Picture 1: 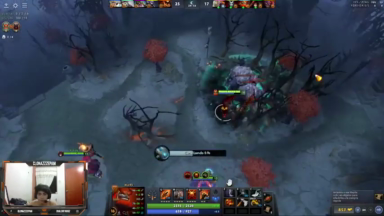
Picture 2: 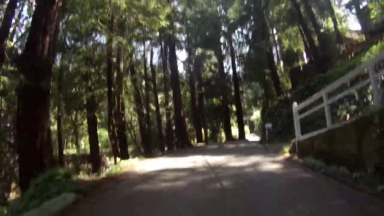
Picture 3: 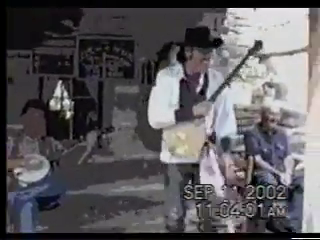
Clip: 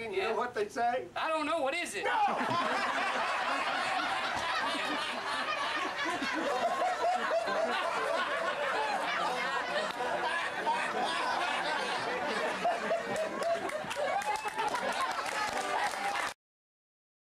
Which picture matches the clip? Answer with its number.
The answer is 3